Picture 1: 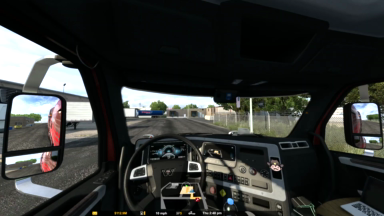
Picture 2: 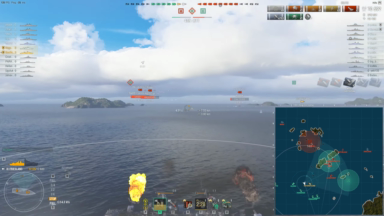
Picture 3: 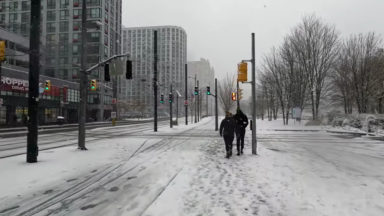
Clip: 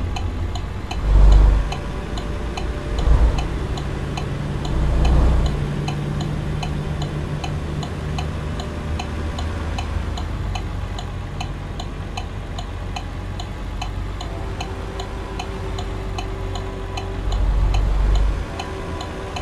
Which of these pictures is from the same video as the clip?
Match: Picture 1